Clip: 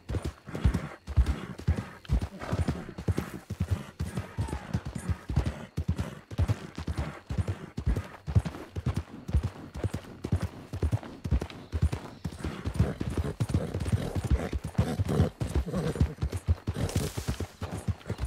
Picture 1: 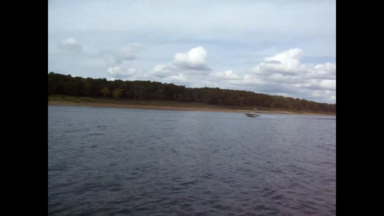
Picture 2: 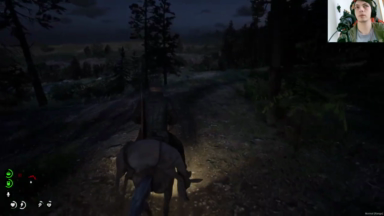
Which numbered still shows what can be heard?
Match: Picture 2